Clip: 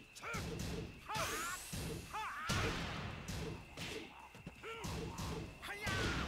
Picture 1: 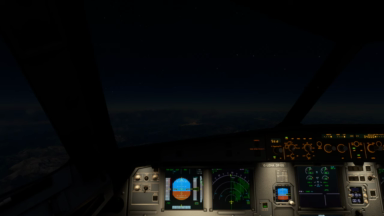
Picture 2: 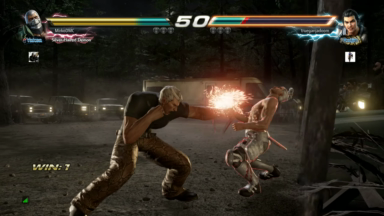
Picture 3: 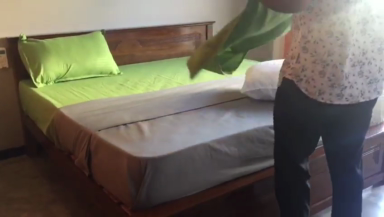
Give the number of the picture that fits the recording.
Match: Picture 2